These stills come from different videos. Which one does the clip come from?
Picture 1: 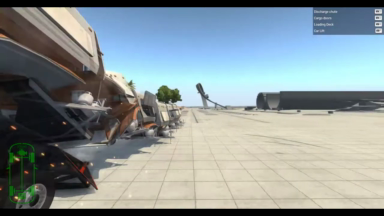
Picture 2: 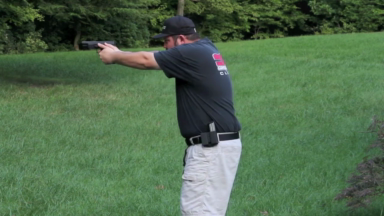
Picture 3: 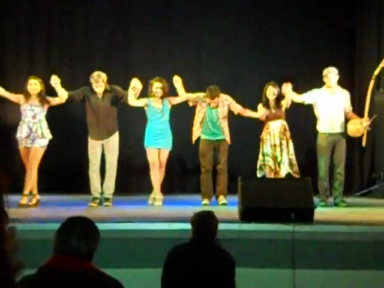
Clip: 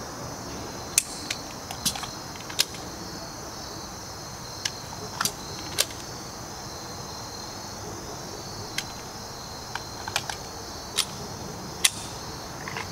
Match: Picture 2